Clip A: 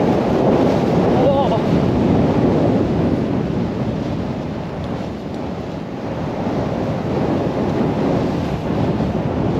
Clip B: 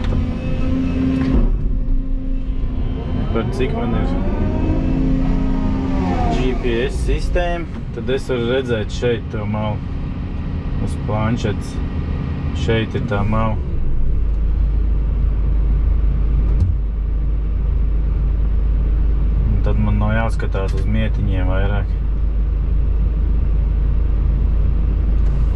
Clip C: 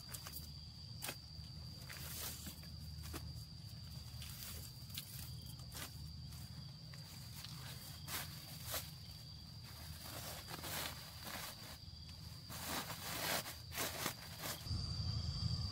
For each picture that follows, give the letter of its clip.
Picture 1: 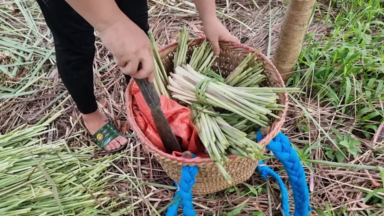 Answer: C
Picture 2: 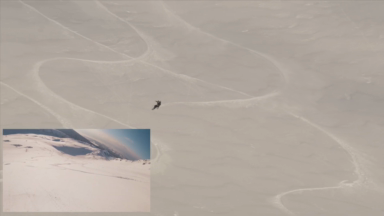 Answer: A